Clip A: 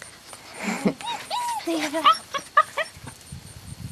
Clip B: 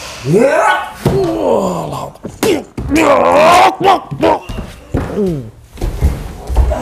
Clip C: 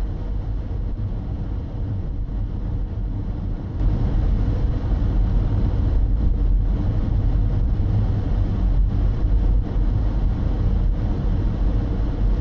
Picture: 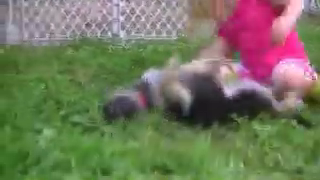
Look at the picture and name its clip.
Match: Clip A